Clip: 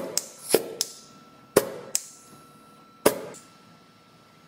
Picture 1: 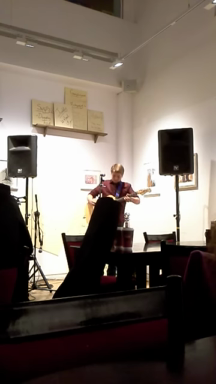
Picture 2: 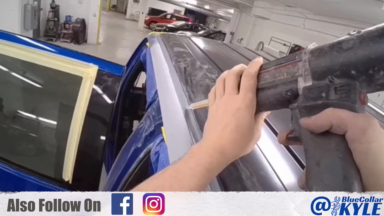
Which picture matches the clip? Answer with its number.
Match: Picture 2